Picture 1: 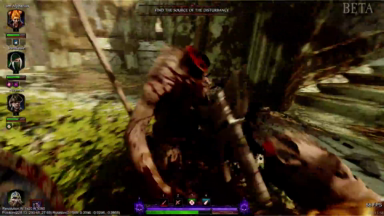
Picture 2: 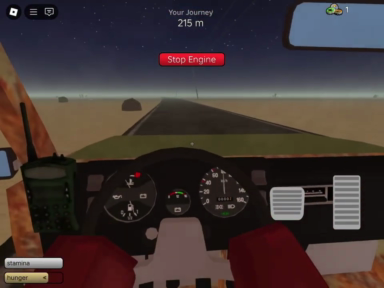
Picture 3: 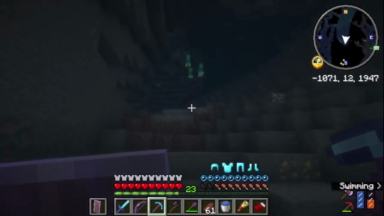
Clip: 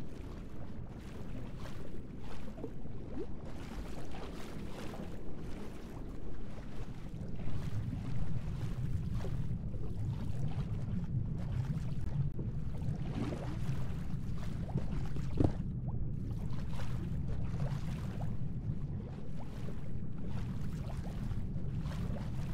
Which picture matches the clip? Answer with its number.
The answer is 3